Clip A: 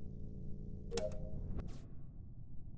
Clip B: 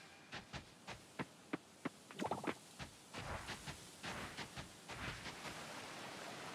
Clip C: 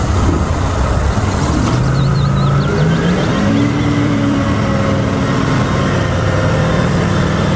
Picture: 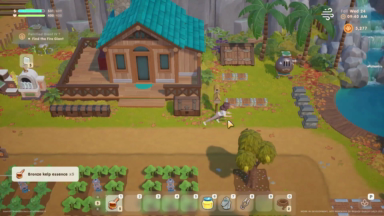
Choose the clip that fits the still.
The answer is B